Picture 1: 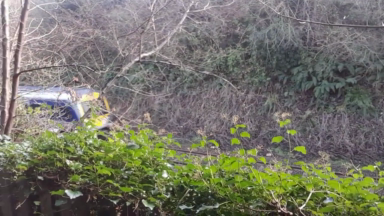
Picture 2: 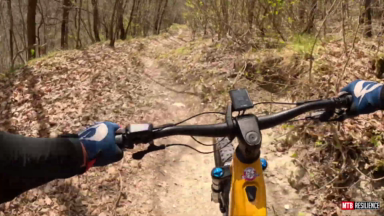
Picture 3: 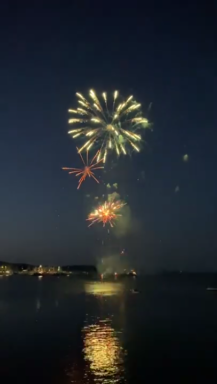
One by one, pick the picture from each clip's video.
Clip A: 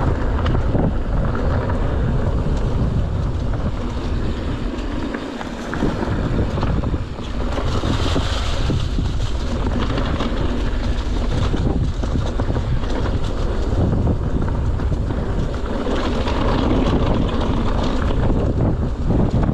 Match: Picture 2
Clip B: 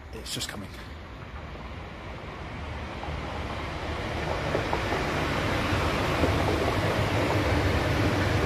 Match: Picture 1